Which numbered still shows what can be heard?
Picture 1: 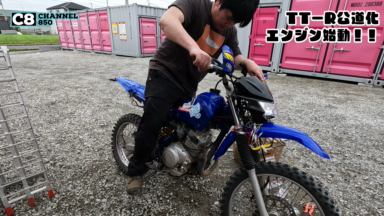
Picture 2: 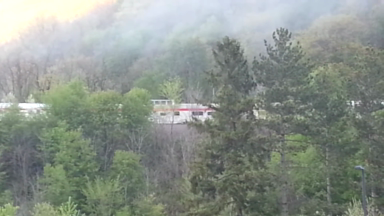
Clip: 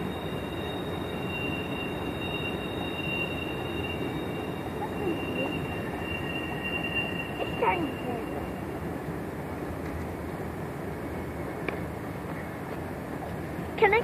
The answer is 2